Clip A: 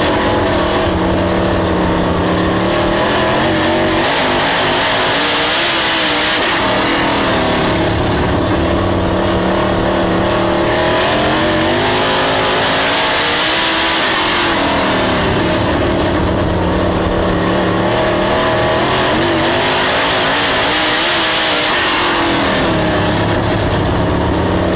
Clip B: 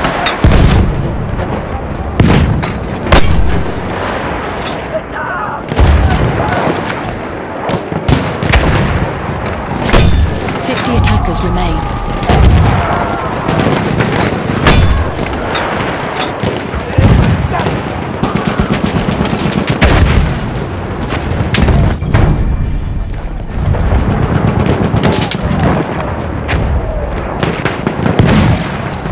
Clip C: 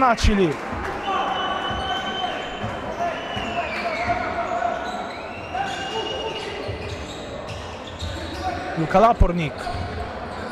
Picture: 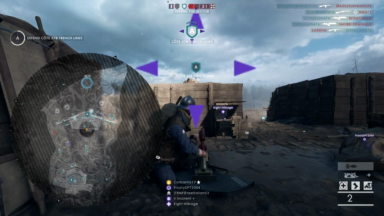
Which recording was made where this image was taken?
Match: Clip B